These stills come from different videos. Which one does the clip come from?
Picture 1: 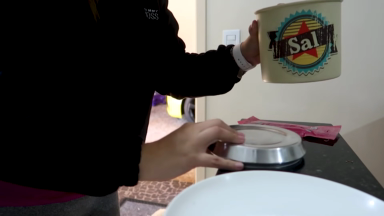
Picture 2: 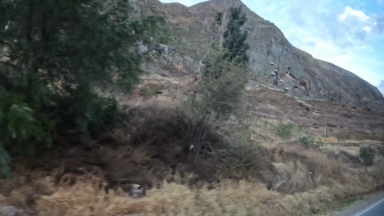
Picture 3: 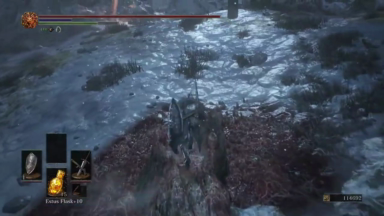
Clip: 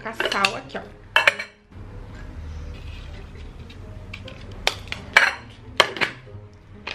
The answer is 1